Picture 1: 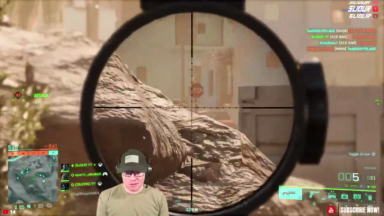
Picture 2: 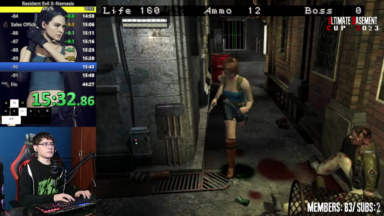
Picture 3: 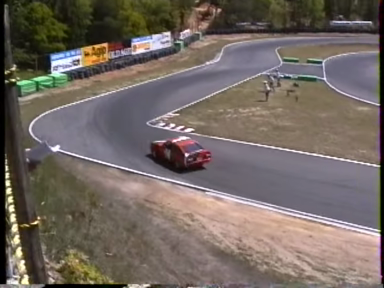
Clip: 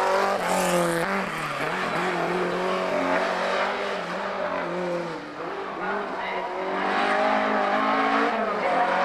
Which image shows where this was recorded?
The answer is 3